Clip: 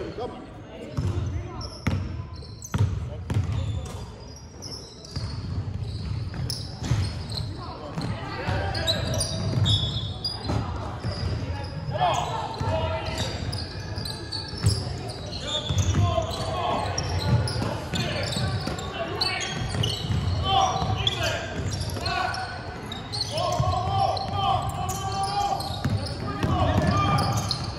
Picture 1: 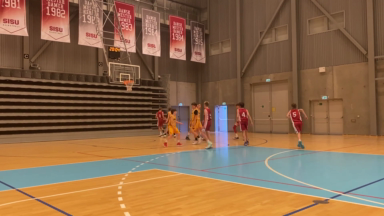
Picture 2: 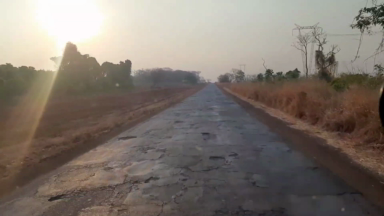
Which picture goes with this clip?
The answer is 1